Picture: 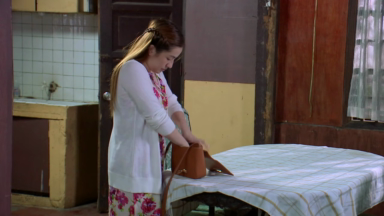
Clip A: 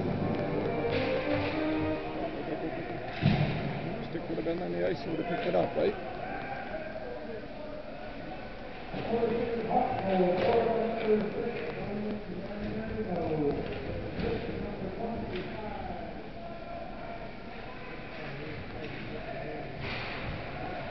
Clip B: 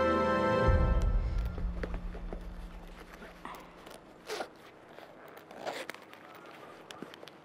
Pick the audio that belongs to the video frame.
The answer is B